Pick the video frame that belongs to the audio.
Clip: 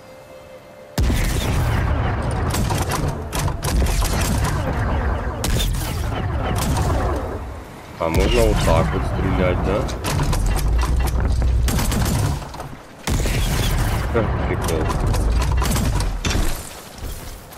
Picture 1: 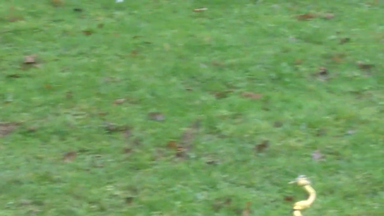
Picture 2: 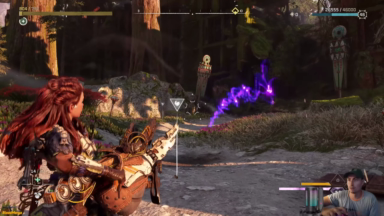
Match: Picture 2